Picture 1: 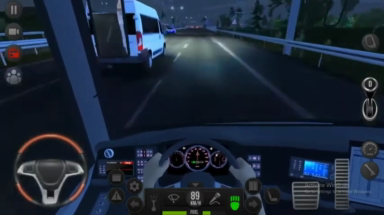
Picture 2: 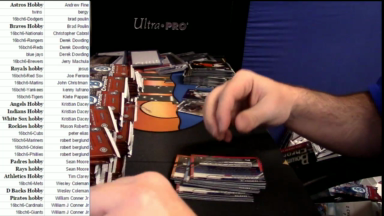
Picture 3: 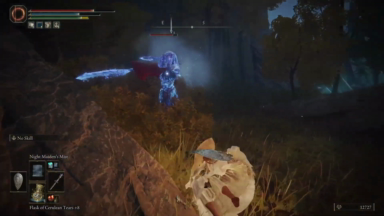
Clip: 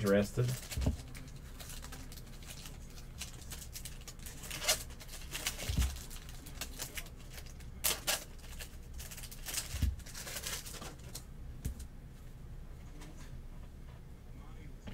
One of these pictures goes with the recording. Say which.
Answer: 2